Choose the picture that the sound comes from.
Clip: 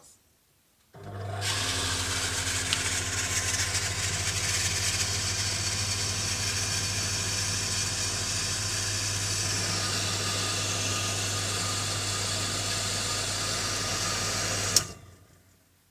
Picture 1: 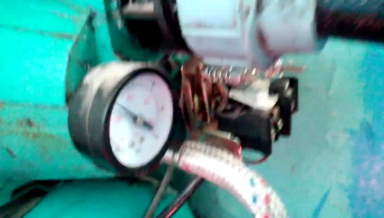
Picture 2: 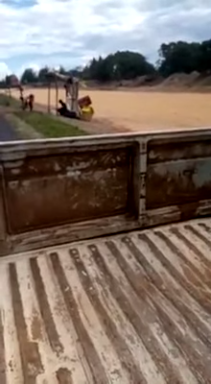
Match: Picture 1